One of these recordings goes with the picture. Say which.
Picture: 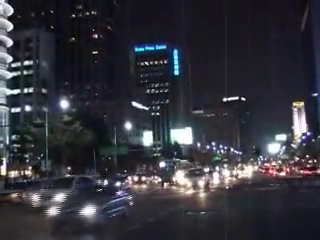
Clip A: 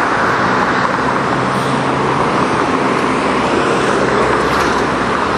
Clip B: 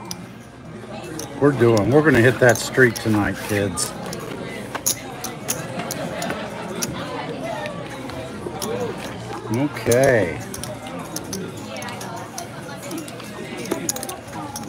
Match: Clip A